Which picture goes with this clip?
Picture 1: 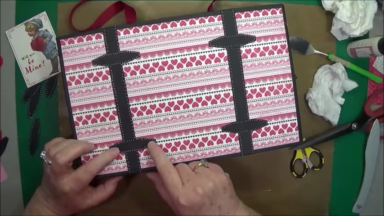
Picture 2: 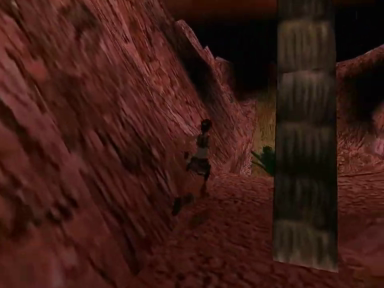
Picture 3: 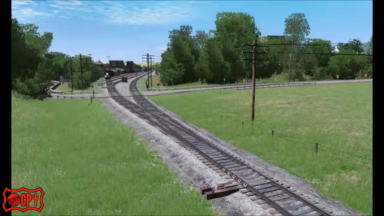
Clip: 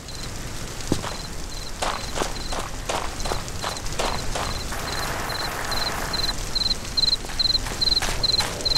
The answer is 2